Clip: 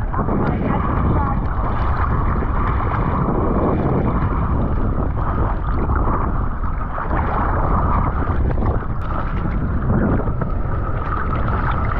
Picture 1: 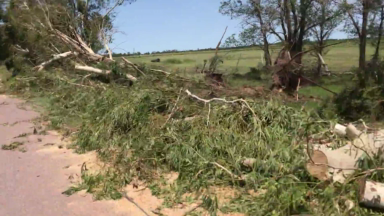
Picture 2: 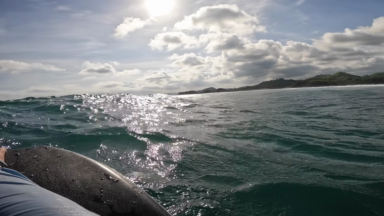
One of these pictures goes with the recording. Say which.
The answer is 2